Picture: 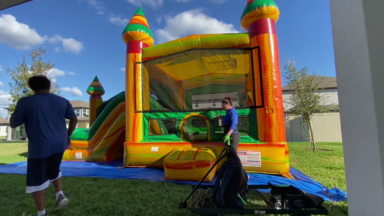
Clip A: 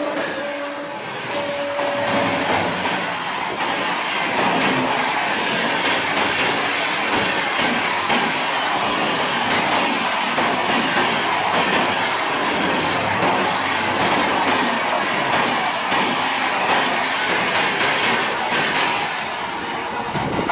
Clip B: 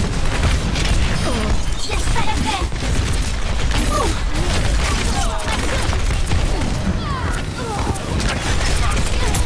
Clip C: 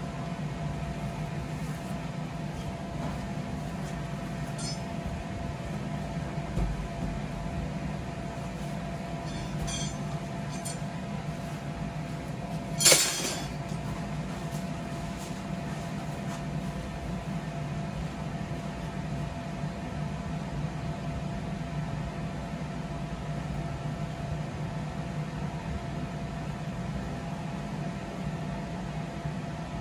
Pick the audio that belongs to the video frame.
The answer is C